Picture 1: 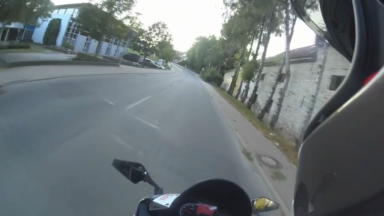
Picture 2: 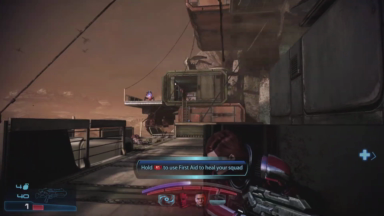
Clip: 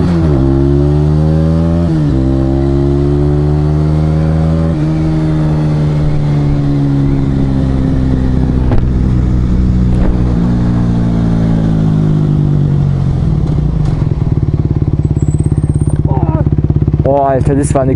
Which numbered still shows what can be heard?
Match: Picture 1